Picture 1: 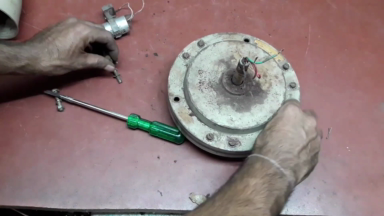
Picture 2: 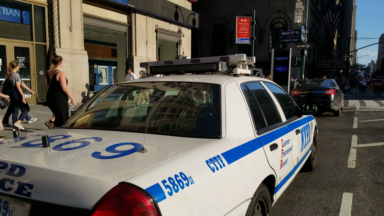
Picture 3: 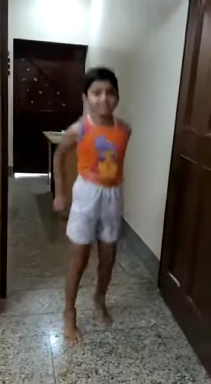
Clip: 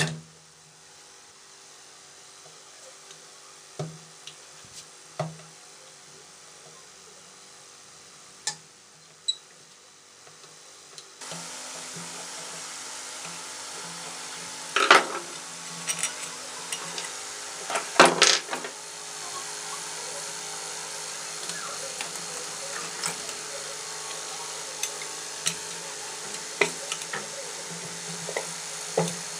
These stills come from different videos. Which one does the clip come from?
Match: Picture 1